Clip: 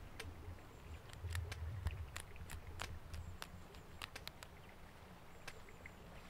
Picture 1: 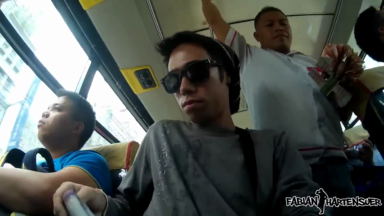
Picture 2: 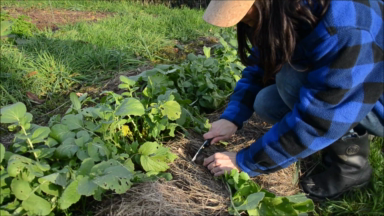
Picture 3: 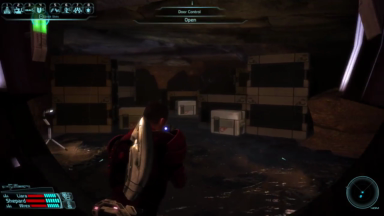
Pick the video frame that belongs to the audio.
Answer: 2